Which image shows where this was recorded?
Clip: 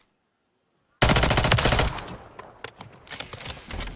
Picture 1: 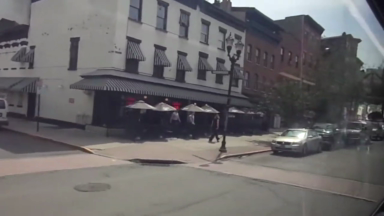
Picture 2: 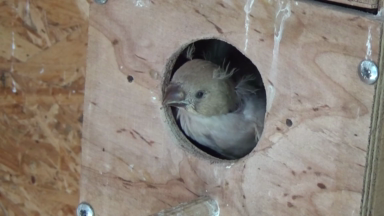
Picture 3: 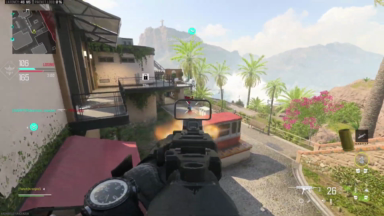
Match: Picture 3